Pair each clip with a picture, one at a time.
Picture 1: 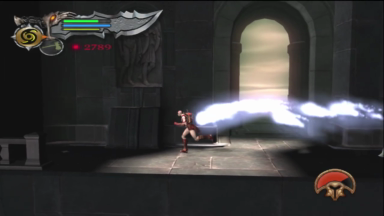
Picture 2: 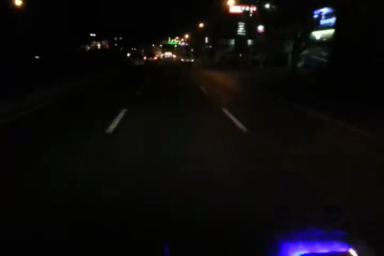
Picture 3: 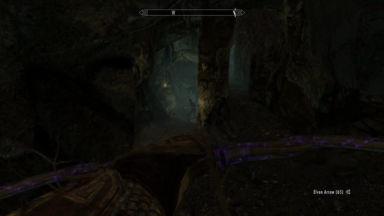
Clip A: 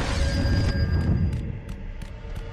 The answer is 1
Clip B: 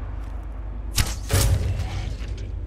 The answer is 3